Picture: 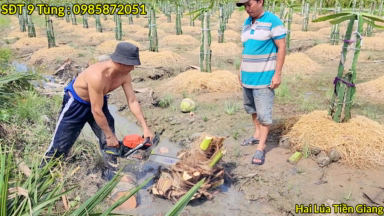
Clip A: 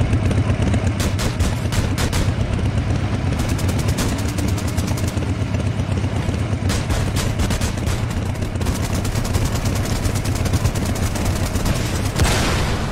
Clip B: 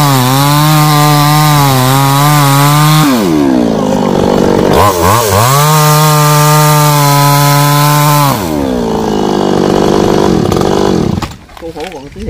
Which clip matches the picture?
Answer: B